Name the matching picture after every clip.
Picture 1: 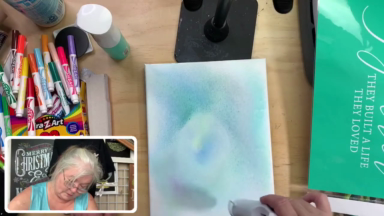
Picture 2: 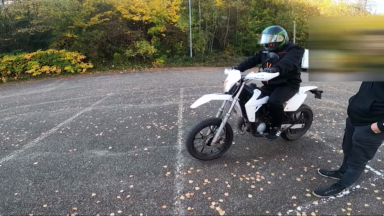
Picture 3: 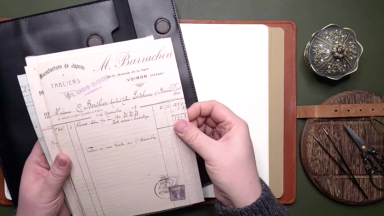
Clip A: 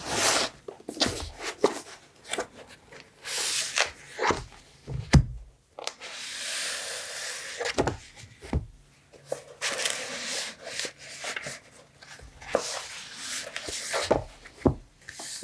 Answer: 3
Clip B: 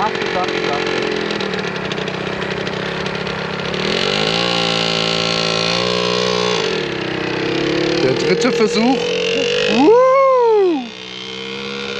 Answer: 2